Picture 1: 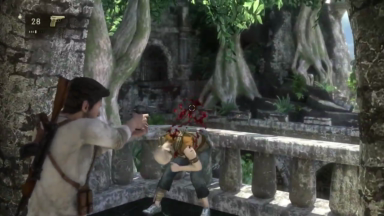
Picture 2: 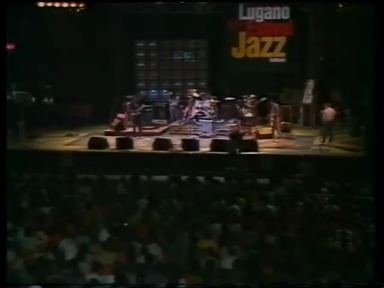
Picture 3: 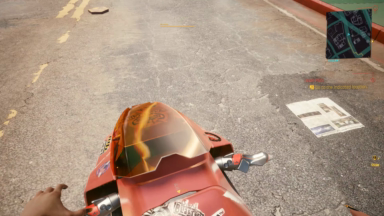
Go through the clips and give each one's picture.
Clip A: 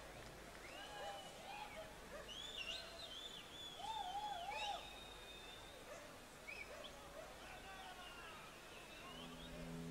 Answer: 2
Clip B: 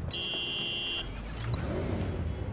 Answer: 3